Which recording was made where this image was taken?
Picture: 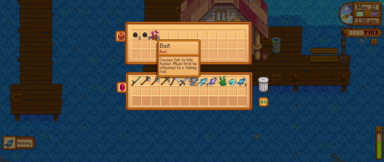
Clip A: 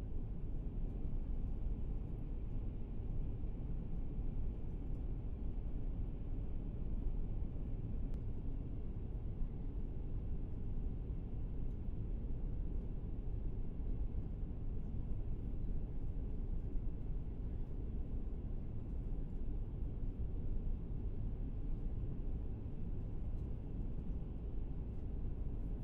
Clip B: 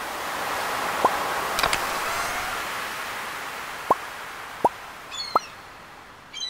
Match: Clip B